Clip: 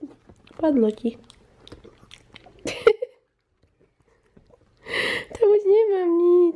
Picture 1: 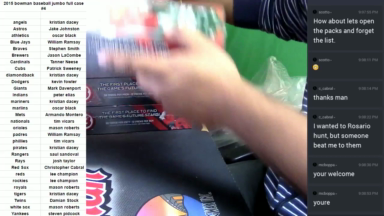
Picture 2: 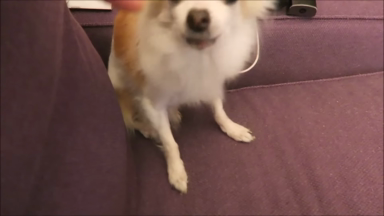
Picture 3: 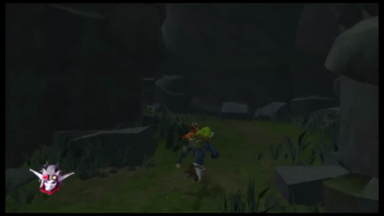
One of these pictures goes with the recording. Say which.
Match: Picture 2